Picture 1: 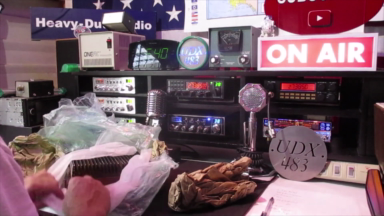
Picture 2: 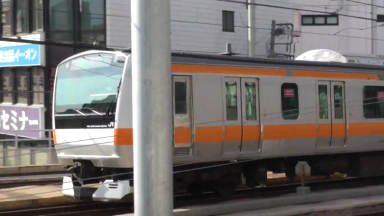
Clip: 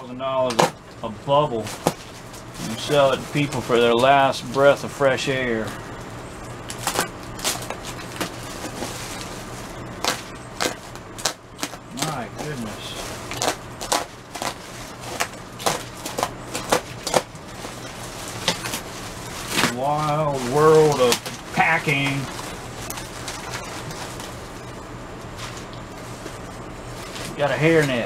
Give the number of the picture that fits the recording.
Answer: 1